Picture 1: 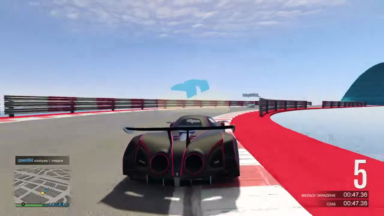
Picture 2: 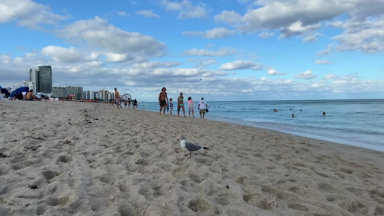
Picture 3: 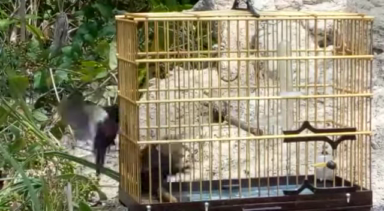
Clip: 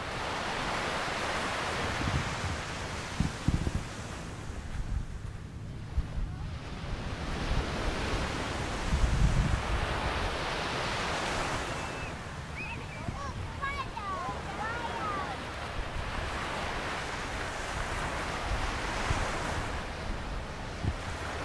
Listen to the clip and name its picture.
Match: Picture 2